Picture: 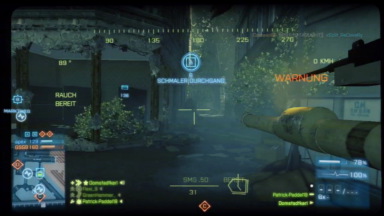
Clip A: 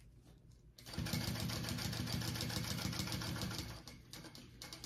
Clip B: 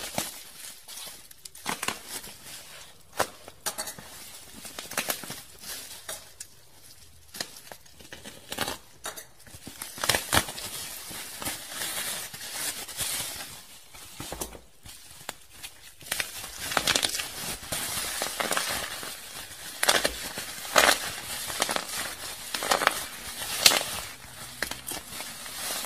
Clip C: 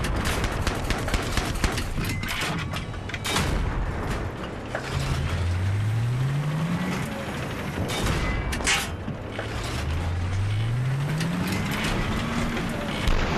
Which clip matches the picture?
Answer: C